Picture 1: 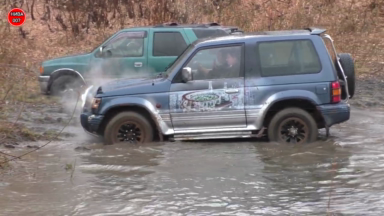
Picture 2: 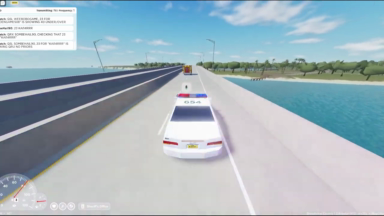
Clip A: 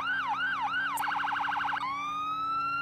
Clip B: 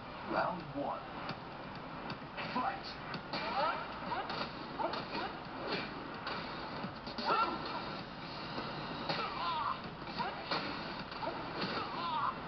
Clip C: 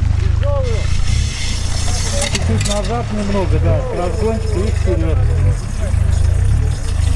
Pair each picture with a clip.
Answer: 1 C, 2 A